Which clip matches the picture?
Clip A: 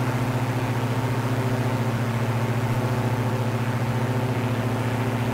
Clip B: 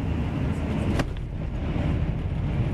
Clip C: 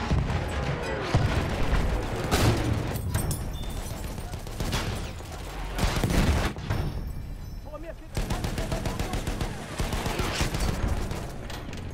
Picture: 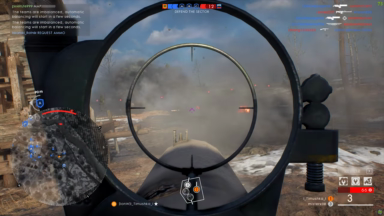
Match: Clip C